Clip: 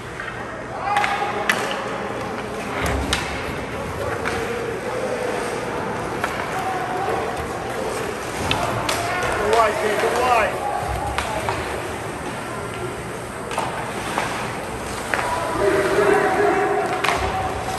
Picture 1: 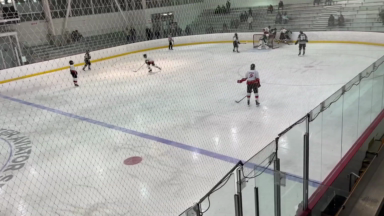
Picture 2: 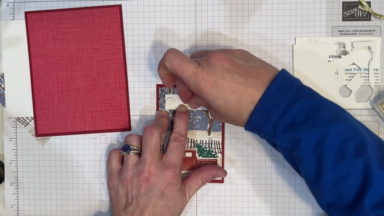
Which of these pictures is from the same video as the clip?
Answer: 1